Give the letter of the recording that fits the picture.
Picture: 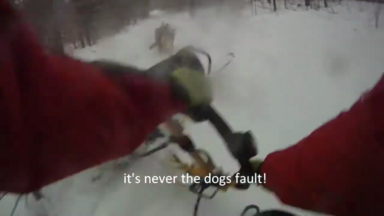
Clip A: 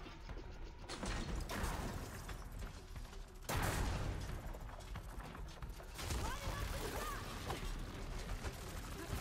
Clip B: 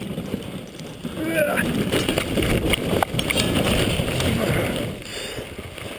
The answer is B